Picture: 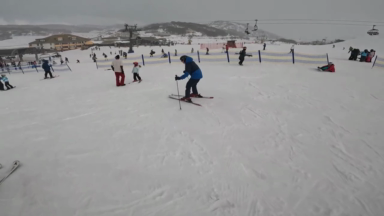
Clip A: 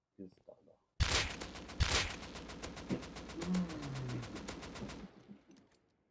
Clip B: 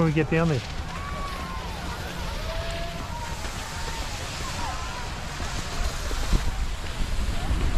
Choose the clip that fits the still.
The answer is B